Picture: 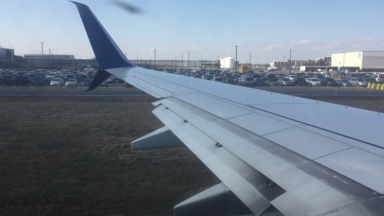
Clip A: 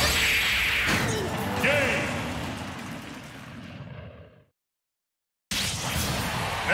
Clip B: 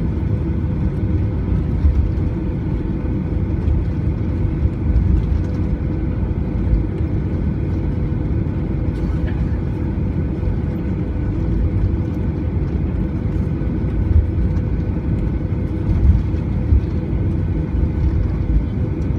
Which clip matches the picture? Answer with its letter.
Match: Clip B